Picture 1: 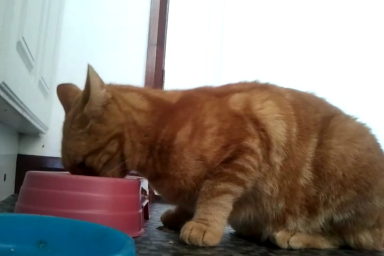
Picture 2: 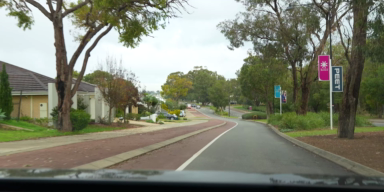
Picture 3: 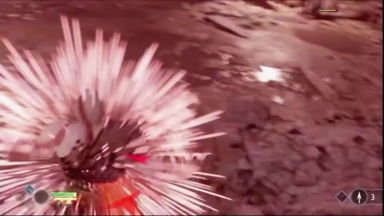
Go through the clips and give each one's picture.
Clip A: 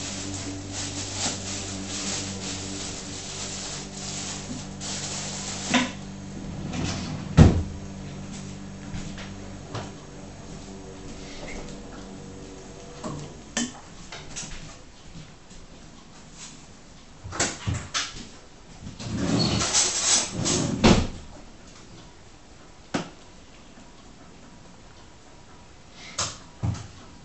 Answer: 1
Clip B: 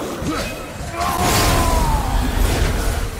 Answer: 3